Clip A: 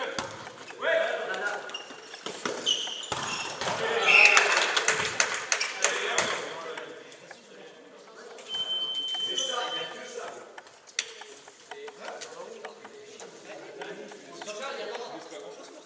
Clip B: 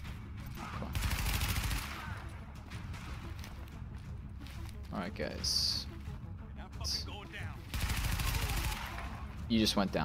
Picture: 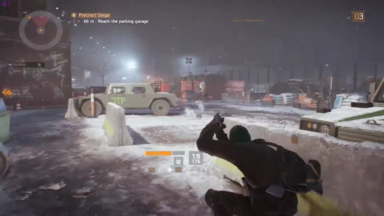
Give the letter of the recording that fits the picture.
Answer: B